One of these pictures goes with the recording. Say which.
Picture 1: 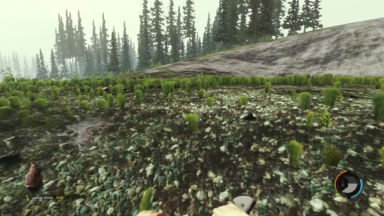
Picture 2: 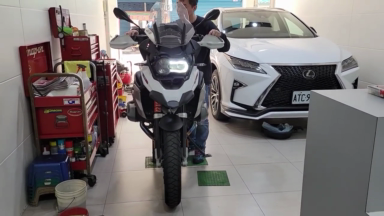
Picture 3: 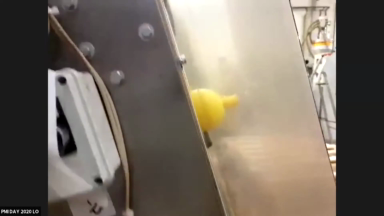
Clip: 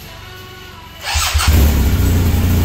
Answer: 2